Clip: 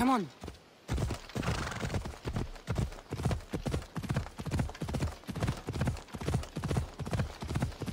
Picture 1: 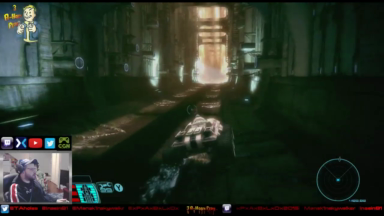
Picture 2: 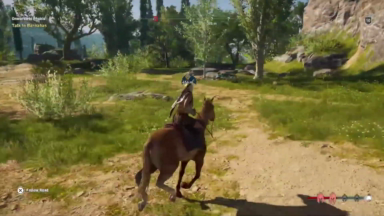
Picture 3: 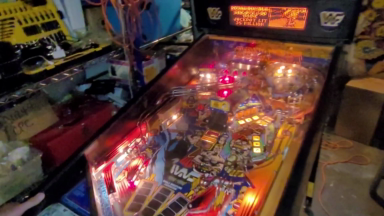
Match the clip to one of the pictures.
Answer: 2